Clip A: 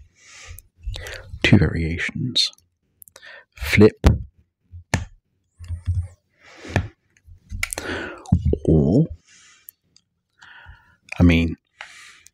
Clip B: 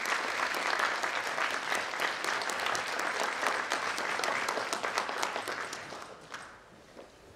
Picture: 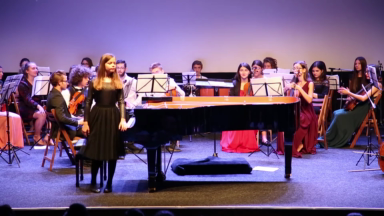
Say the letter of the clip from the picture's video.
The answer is B